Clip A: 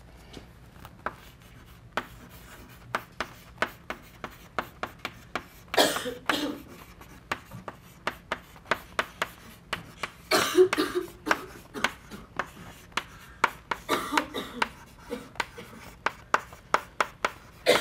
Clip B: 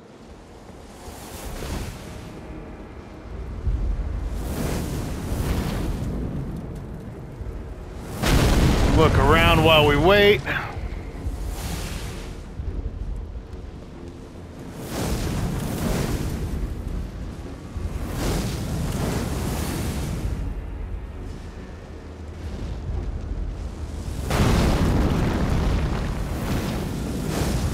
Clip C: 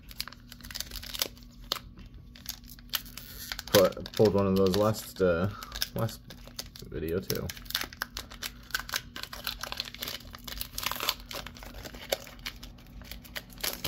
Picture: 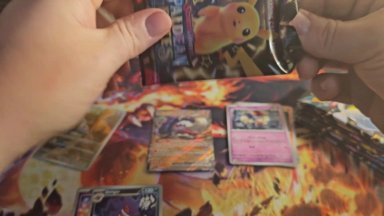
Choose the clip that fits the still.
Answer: C